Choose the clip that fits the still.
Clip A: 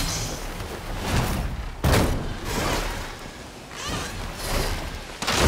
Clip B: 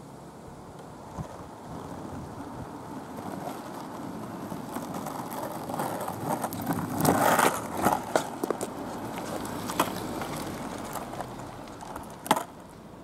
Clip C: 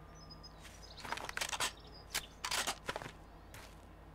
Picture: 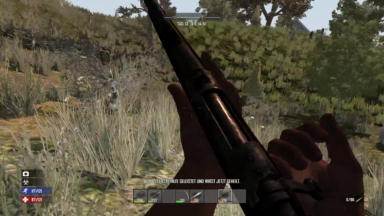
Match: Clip C